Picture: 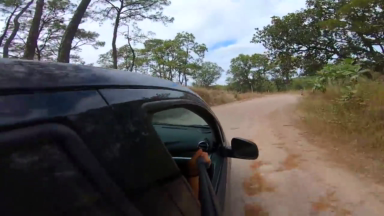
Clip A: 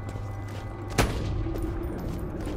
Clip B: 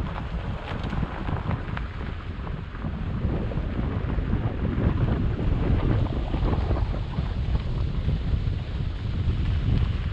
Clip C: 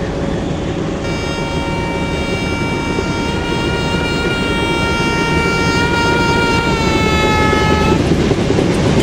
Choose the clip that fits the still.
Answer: B